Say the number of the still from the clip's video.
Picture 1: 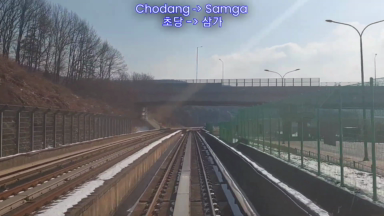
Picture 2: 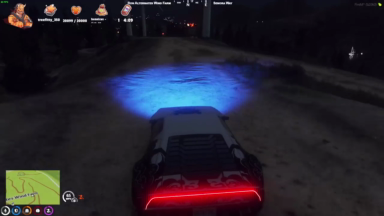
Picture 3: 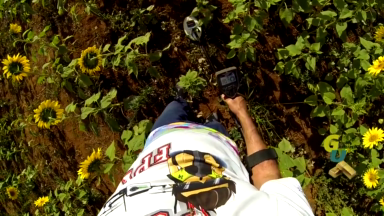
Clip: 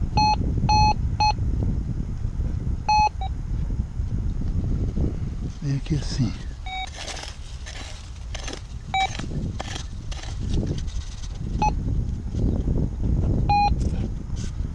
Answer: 3